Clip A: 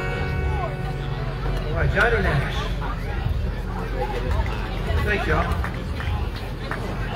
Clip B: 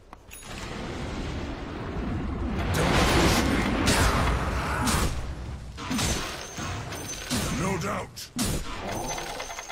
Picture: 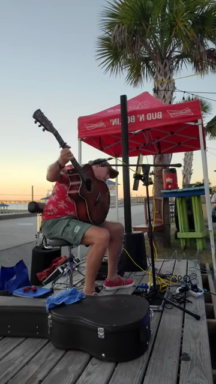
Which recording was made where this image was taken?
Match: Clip A